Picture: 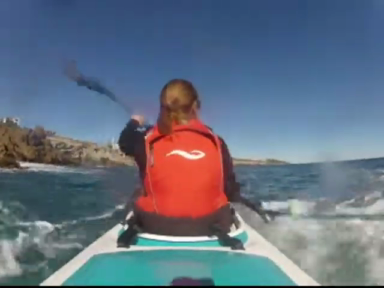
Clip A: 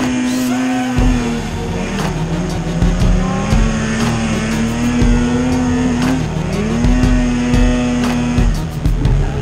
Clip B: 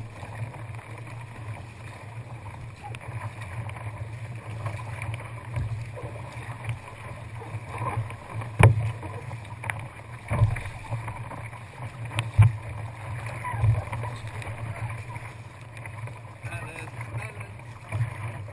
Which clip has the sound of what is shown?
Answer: B